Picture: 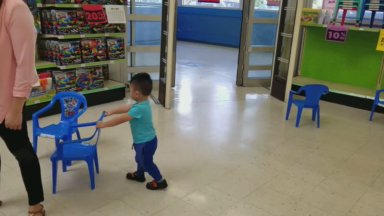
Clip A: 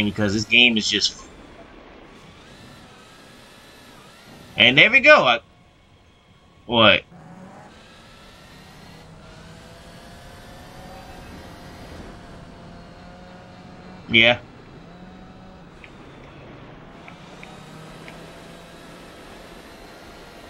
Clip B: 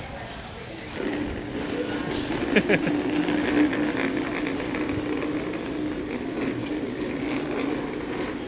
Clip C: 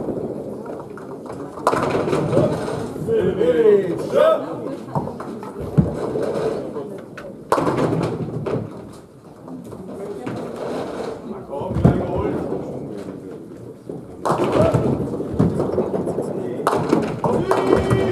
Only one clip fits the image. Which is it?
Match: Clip B